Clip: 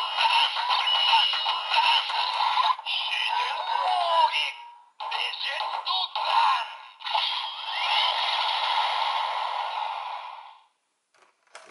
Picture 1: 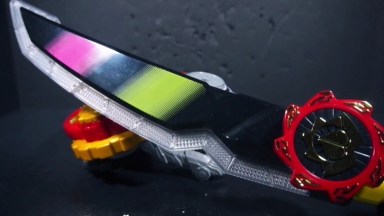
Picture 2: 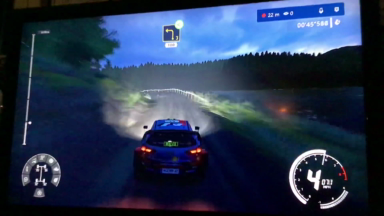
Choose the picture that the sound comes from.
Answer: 1